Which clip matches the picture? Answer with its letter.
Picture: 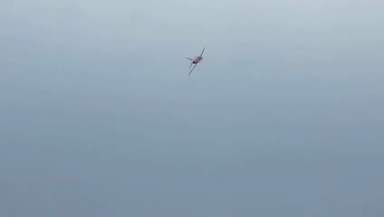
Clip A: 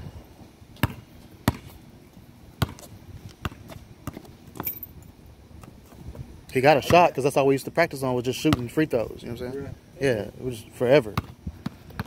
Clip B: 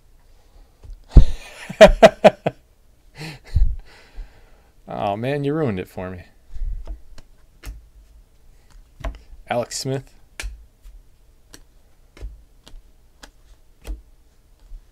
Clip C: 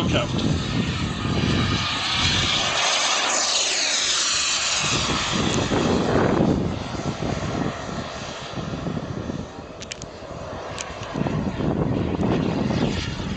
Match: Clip C